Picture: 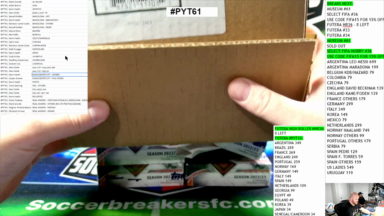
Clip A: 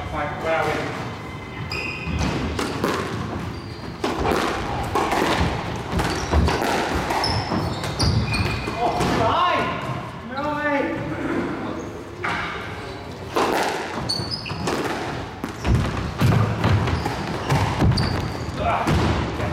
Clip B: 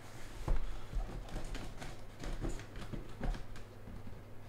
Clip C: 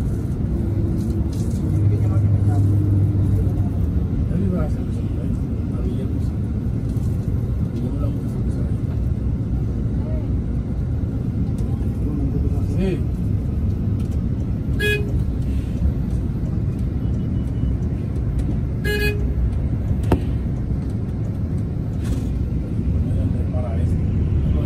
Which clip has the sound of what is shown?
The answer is B